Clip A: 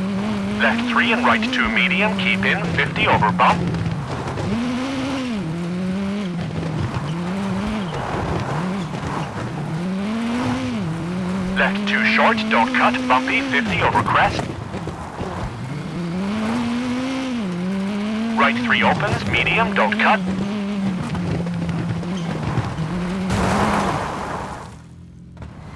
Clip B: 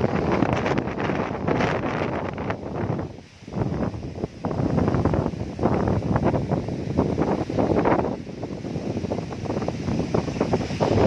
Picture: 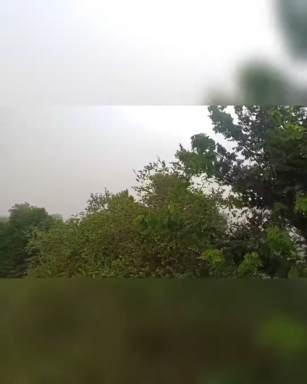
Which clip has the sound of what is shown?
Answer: B